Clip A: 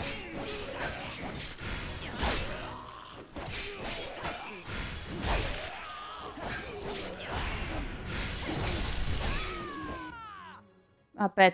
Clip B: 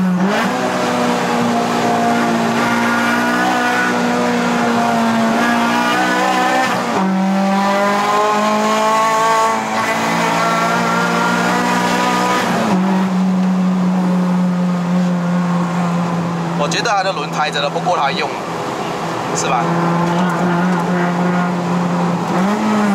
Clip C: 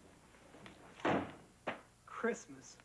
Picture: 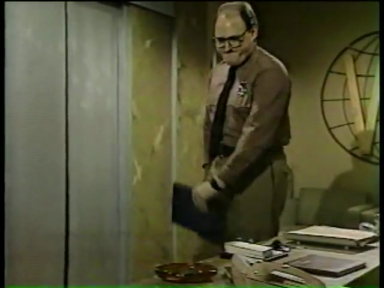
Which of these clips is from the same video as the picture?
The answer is C